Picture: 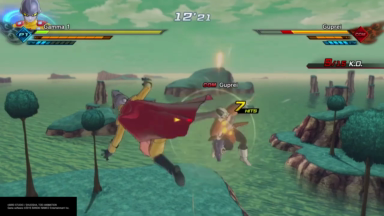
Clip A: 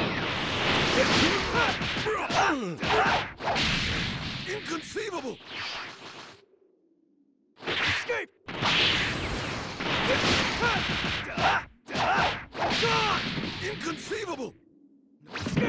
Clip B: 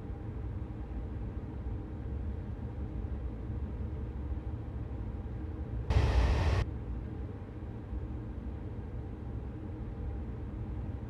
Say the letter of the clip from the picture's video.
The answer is A